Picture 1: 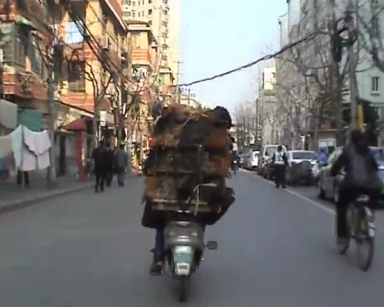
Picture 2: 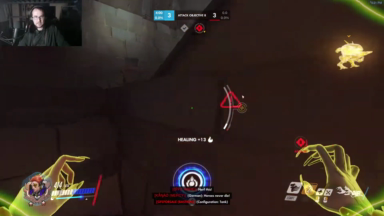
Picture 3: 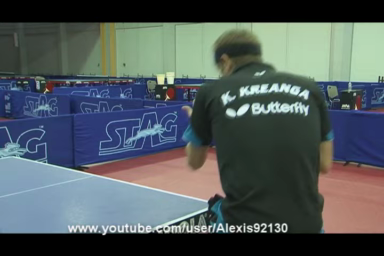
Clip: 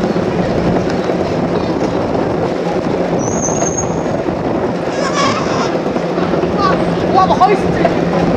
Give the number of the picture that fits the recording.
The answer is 1